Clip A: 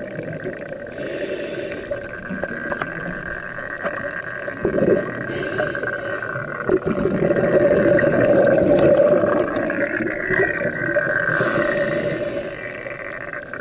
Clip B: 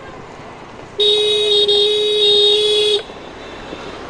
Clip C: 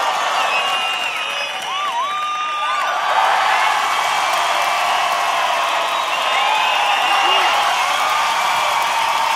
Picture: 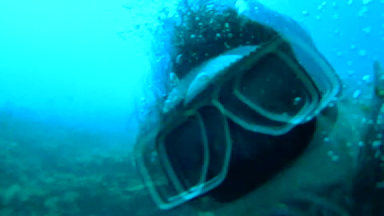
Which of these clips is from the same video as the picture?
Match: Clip A